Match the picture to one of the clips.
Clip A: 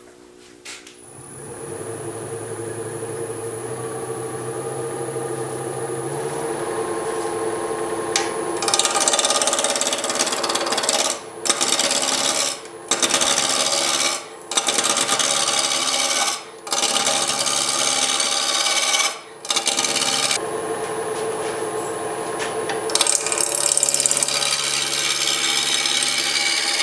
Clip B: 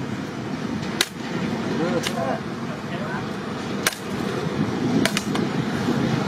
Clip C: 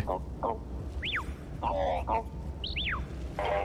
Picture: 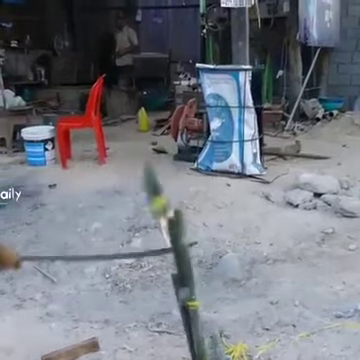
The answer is B